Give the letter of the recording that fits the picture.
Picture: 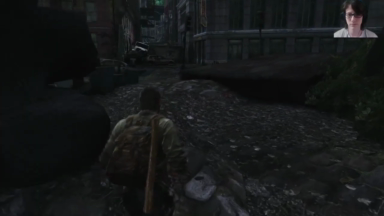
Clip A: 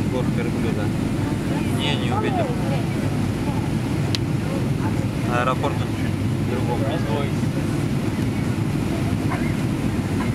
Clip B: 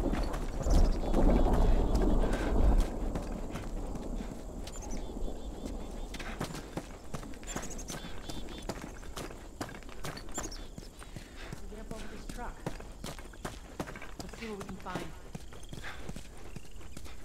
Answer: B